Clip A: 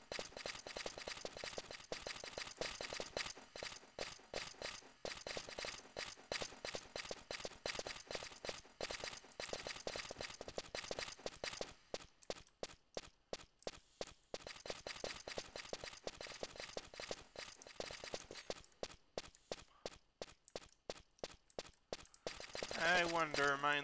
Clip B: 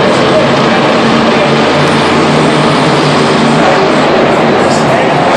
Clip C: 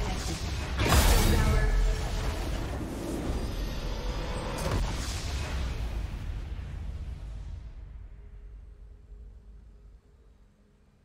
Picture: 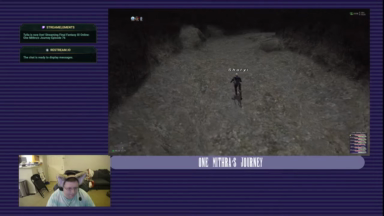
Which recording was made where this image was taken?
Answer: A